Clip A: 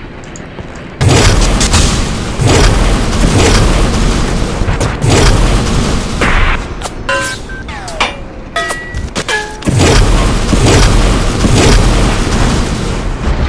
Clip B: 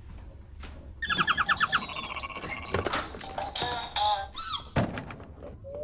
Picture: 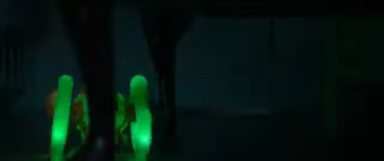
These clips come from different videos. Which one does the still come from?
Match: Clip B